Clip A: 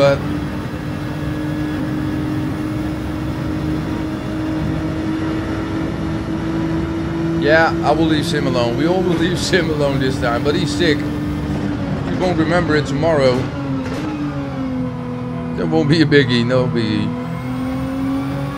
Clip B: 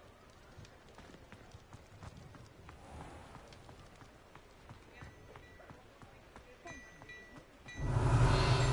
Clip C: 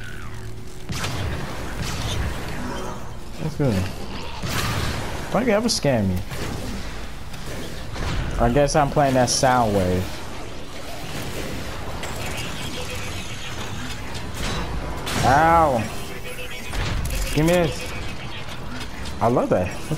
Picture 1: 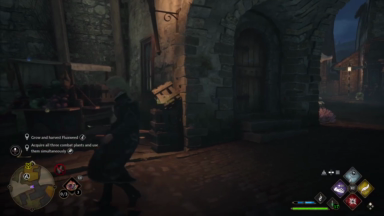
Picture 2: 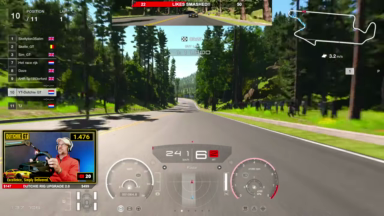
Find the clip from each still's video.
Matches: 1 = B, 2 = A